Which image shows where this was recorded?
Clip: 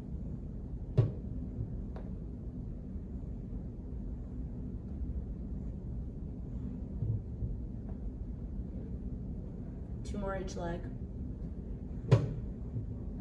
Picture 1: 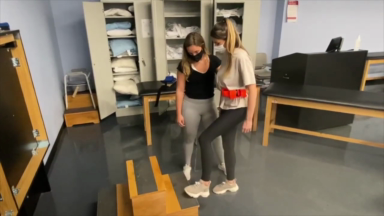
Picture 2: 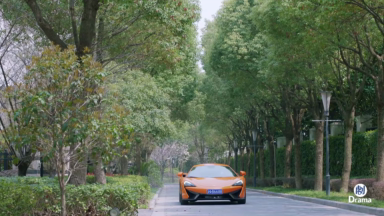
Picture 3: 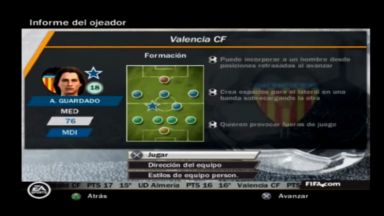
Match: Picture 1